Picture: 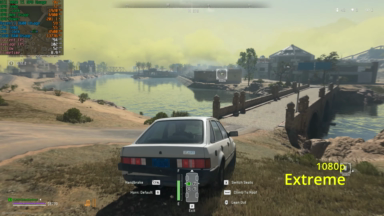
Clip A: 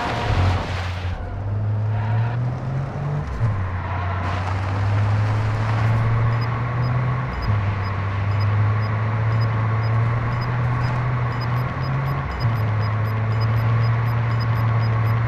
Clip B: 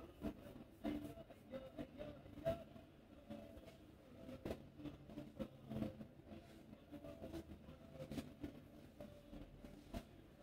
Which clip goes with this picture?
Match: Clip A